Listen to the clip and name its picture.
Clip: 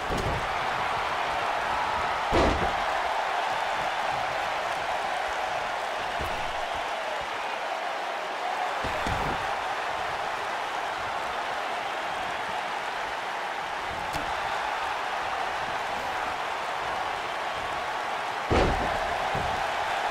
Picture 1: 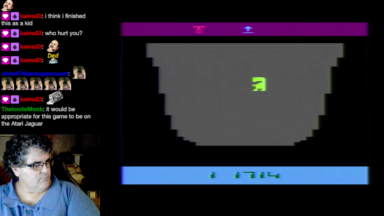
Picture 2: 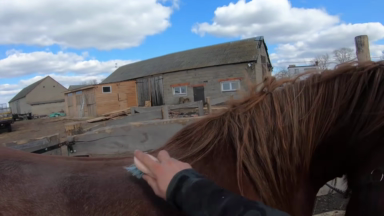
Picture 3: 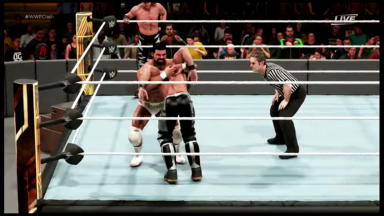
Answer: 3